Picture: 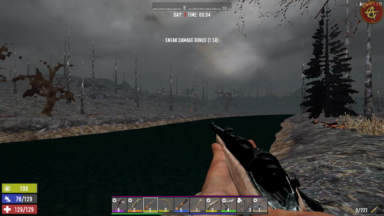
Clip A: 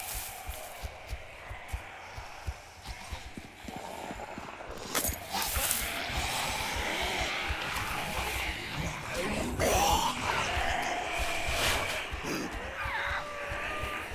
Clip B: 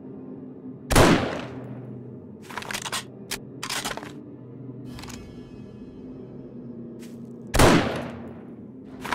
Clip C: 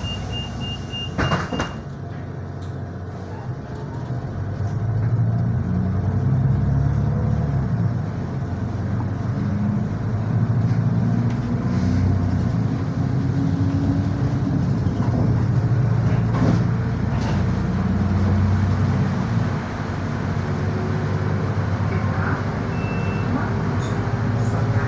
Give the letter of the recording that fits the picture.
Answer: B